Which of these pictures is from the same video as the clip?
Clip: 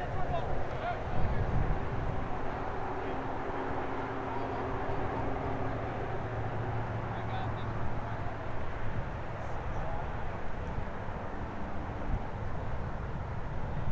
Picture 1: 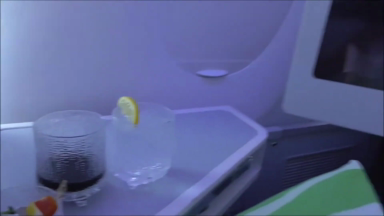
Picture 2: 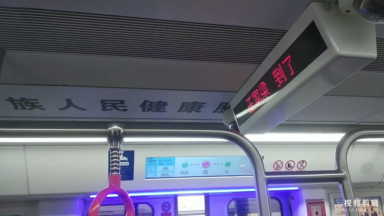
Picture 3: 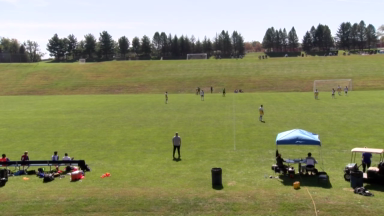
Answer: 3